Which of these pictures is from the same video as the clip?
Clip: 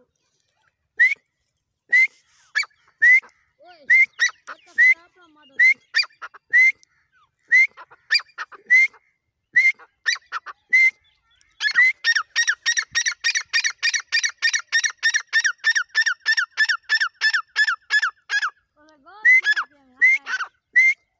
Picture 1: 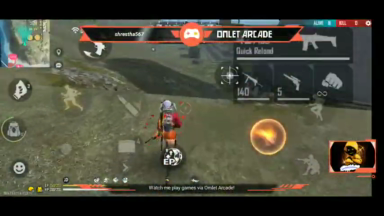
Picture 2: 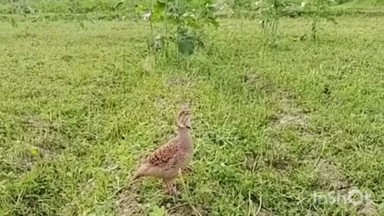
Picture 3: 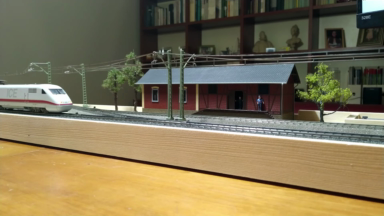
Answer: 2